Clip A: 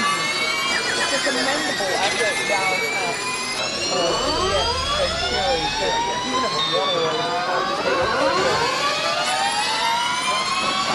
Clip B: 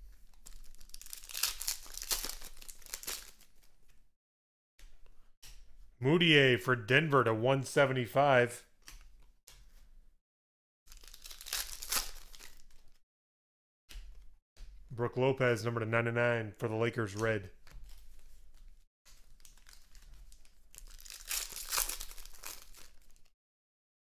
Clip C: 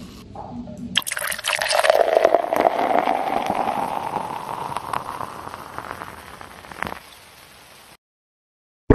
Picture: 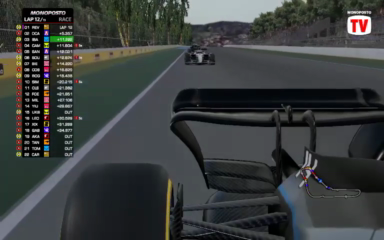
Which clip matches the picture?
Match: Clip A